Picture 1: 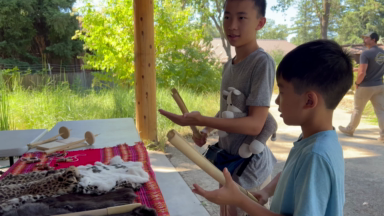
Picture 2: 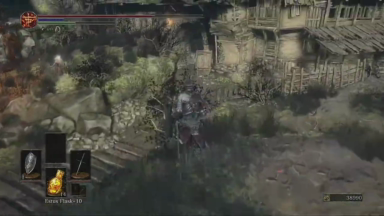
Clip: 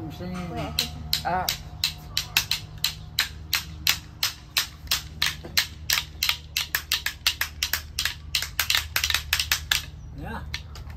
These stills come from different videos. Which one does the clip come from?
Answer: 1